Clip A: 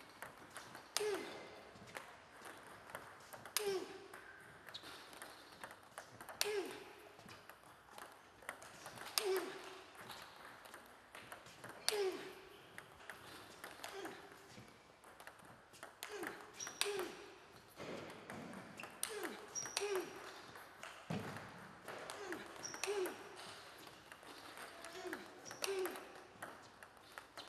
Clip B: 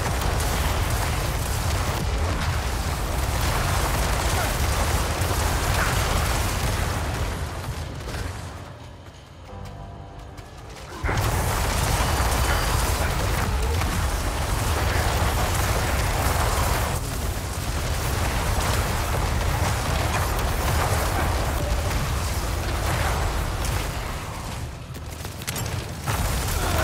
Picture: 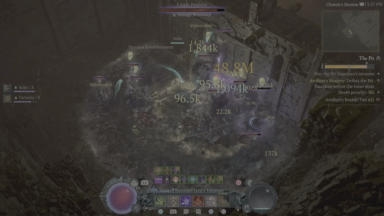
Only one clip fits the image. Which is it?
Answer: B